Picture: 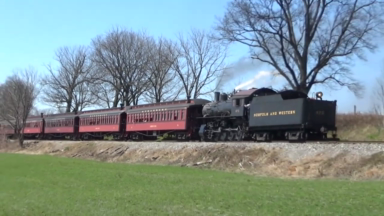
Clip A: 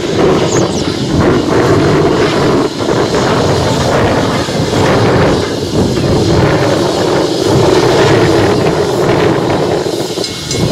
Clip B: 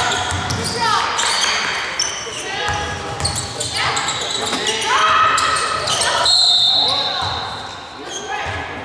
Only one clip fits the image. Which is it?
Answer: A